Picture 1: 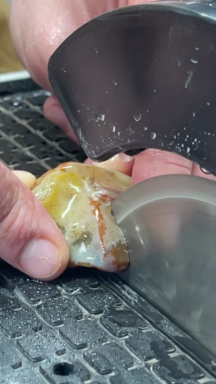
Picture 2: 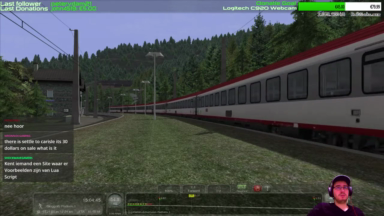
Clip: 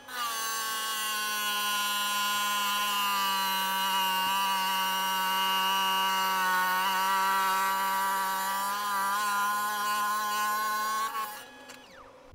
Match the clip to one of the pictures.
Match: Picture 1